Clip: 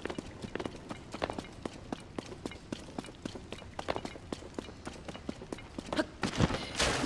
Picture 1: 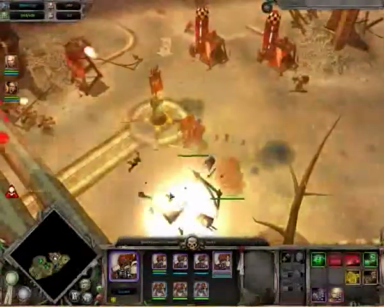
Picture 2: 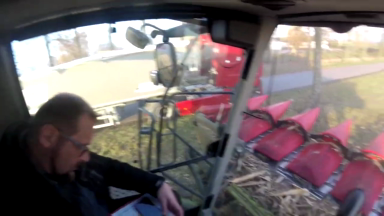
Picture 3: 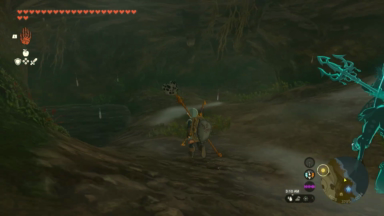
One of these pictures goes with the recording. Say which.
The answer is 3